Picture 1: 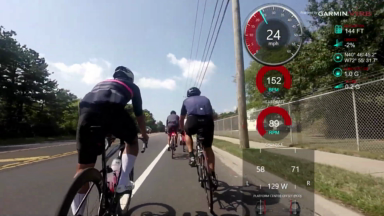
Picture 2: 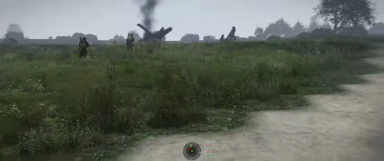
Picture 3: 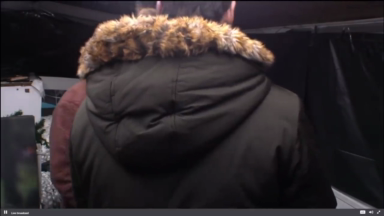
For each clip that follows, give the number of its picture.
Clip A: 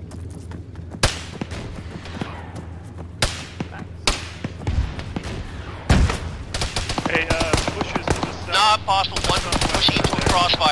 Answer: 2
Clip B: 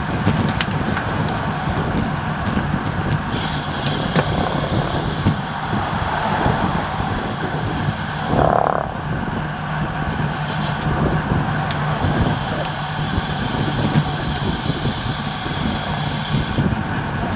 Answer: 1